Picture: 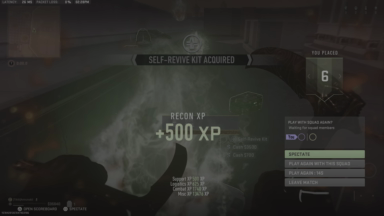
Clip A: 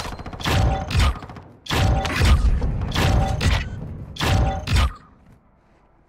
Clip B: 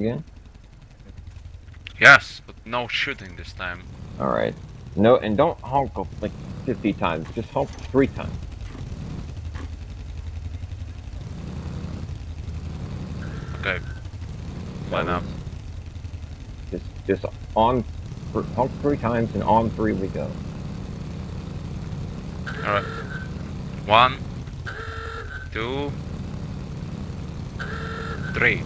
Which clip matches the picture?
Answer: A